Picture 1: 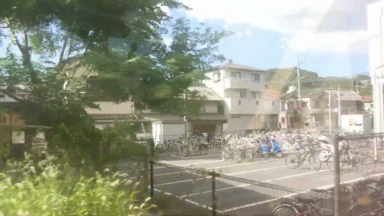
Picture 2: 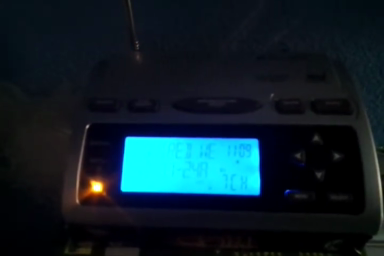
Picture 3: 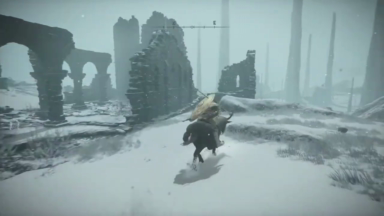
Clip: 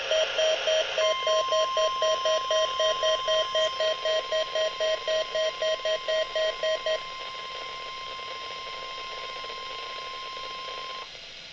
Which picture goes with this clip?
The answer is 2